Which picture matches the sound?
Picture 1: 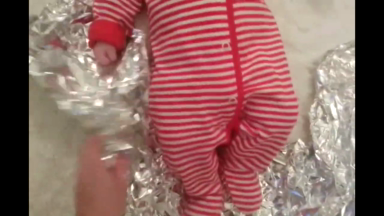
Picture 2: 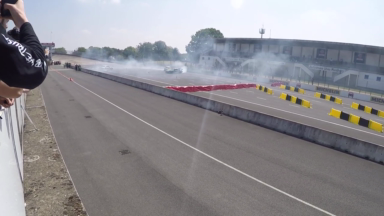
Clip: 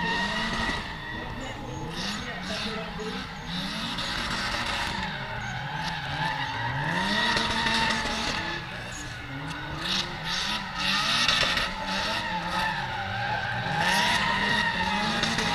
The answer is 2